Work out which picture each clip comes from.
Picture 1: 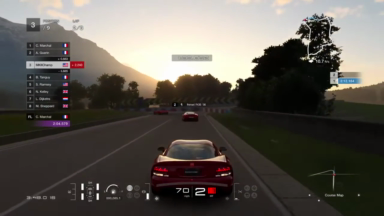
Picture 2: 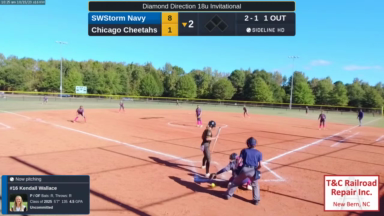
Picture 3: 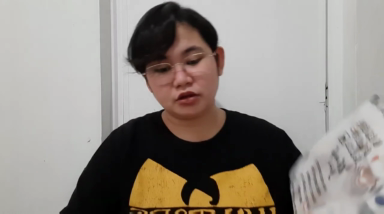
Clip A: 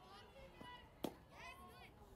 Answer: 2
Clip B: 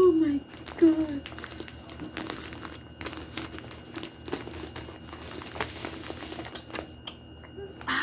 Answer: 3